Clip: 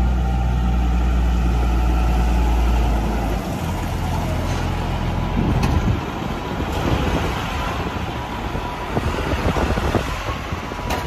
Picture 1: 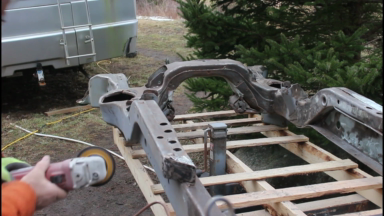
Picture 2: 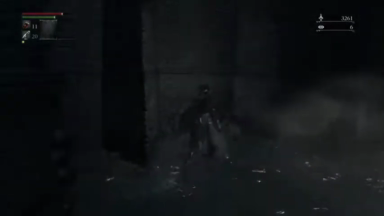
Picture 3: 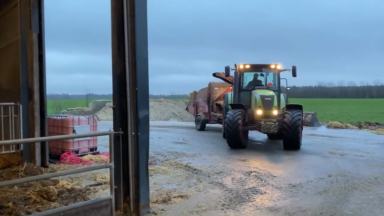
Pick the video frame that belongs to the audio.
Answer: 3